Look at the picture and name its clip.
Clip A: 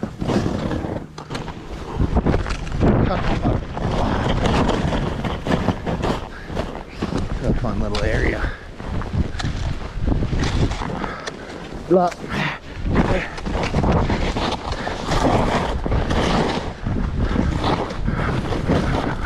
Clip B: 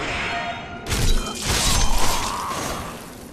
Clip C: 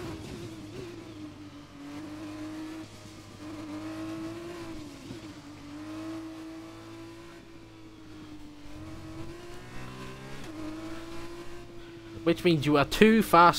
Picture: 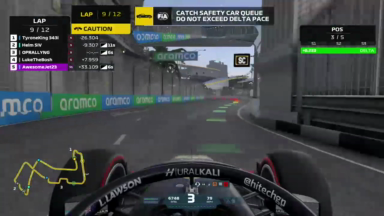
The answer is C